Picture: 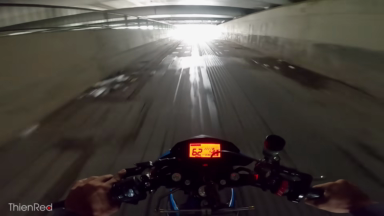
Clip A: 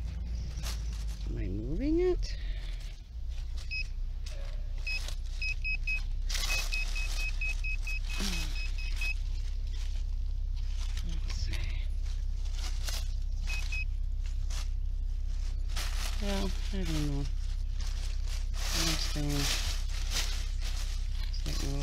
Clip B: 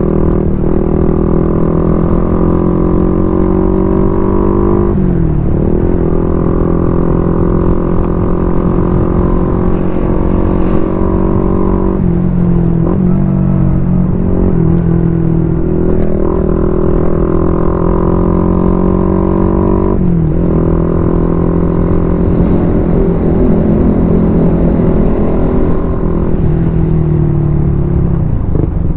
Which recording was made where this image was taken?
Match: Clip B